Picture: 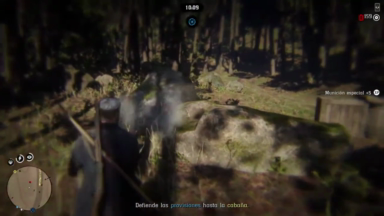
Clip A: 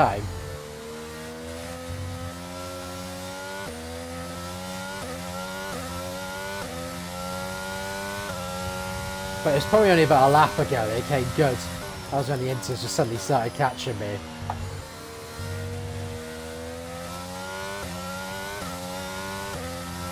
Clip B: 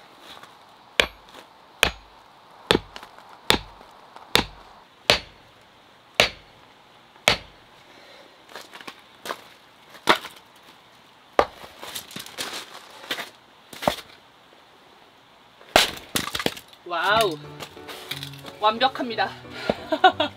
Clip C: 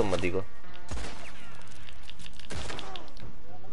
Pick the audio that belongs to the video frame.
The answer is C